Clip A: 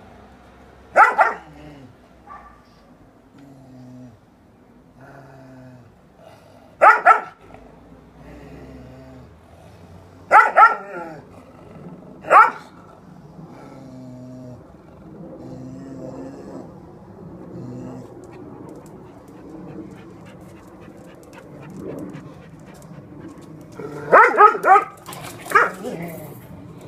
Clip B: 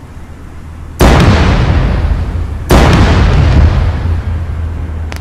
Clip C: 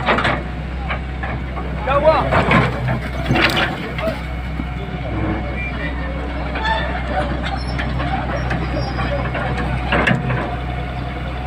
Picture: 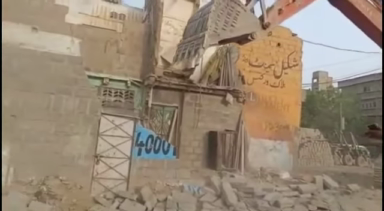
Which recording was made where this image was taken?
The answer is C